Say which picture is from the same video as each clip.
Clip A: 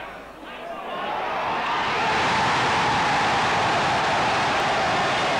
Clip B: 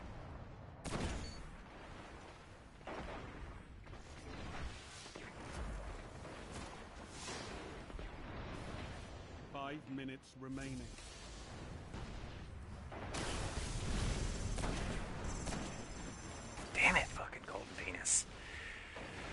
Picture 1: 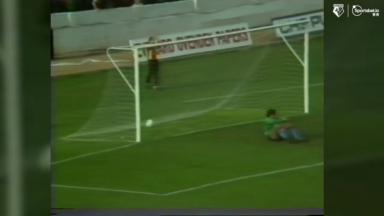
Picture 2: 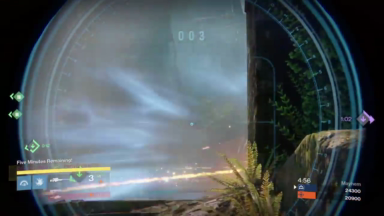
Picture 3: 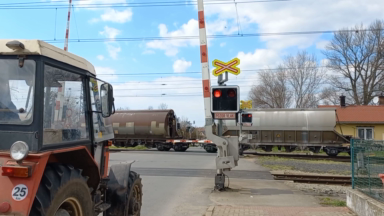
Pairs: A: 1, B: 2